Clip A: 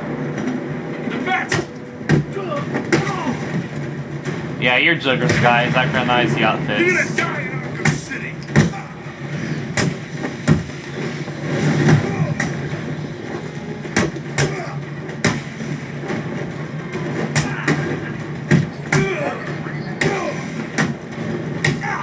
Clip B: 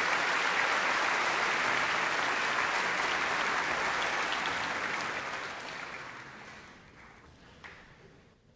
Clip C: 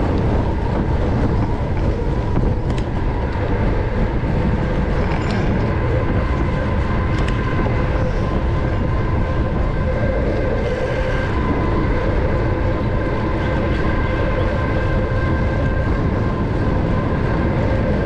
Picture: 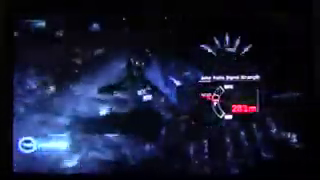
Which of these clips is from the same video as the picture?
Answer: A